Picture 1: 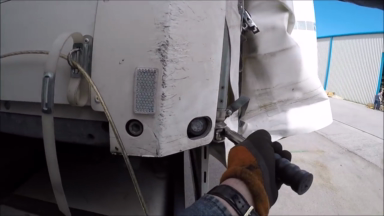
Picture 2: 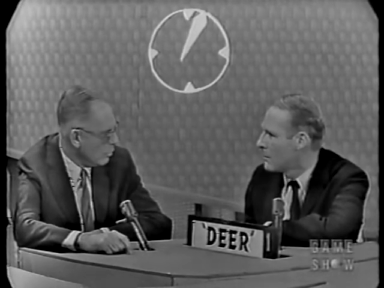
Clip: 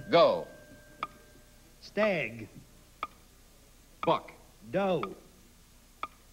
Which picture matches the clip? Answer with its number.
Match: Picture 2